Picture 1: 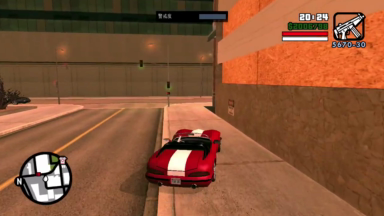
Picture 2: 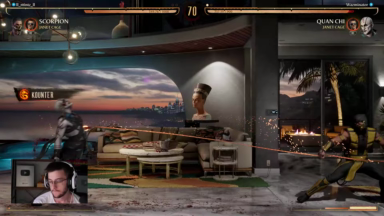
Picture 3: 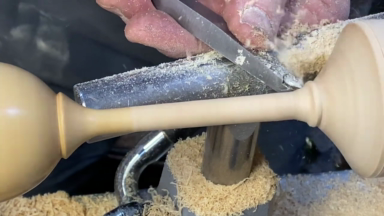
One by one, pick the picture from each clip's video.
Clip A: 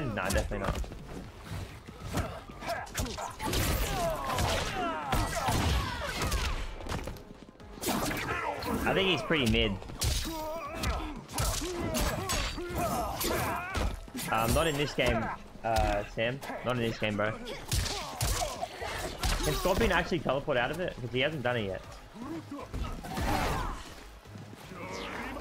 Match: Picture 2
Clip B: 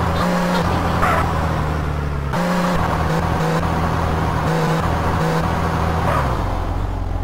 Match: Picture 1